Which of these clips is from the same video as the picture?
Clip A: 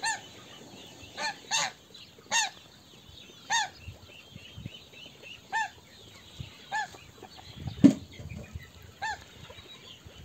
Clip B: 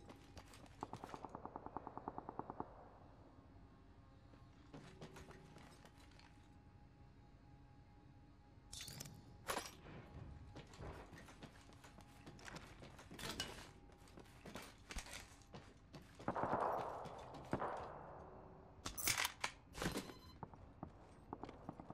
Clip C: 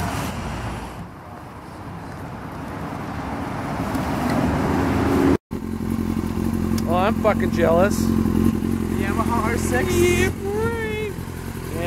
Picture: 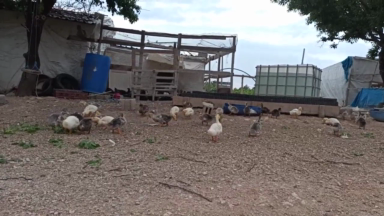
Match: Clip A